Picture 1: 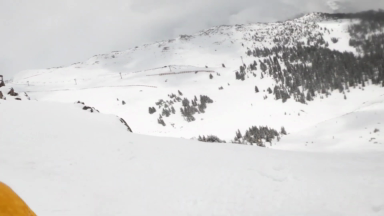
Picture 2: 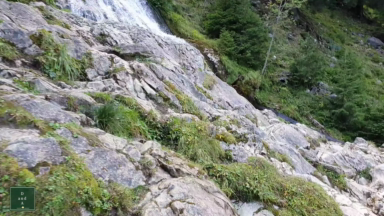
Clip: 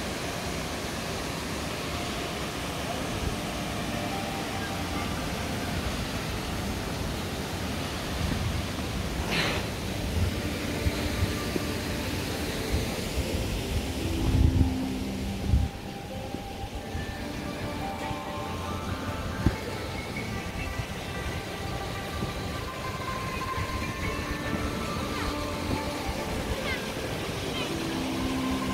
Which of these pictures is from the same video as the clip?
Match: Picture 2